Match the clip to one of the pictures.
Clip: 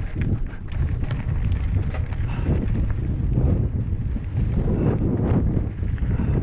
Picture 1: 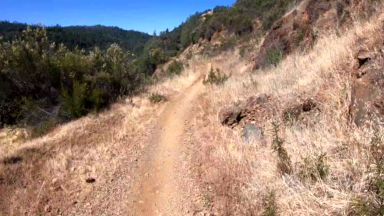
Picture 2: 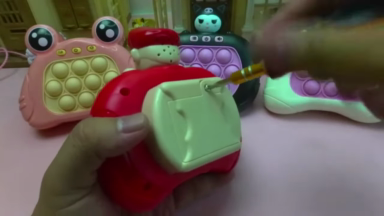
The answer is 1